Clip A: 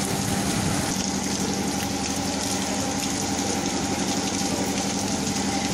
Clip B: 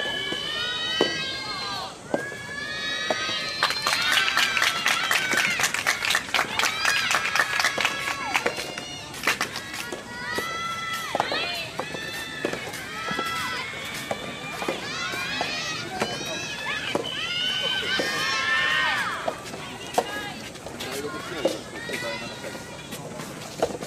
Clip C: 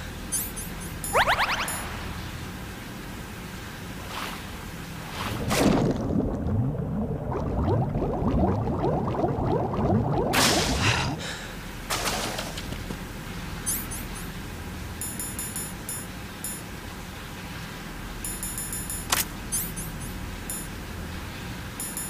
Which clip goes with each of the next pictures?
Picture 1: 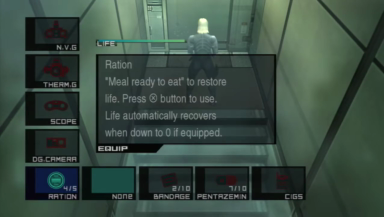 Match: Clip C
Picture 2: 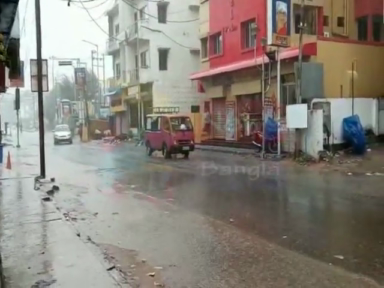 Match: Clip A